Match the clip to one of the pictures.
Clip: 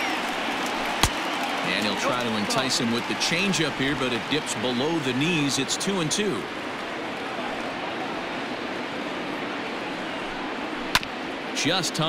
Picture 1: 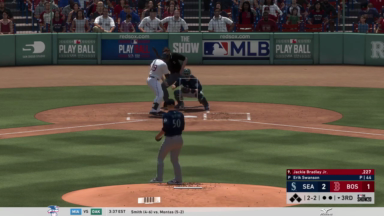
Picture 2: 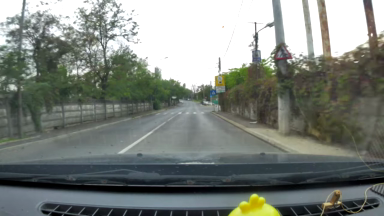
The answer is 1